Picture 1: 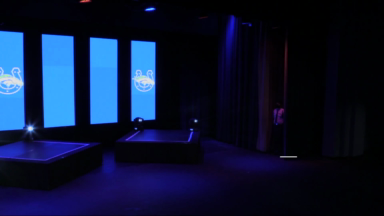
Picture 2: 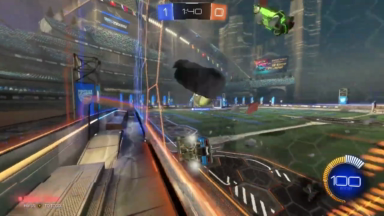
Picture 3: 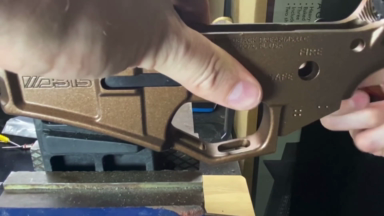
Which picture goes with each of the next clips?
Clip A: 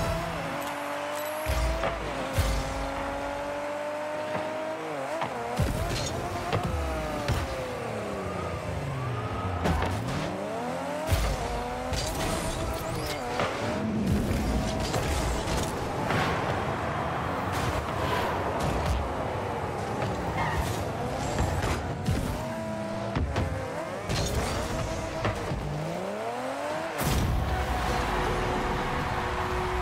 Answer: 2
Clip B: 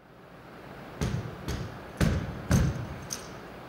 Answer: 1